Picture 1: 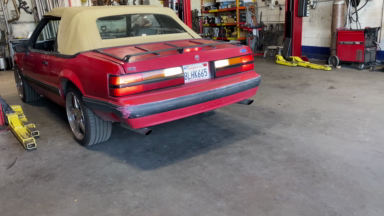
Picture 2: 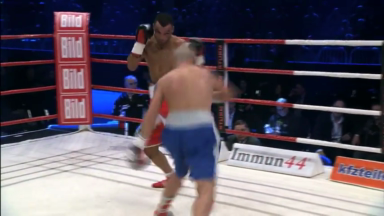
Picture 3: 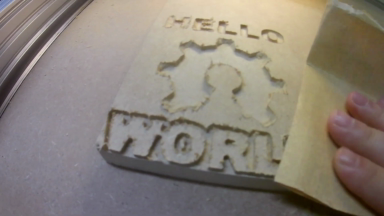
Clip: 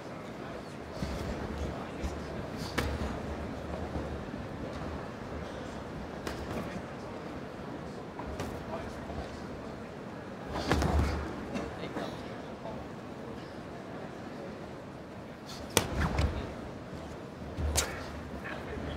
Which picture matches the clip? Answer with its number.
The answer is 2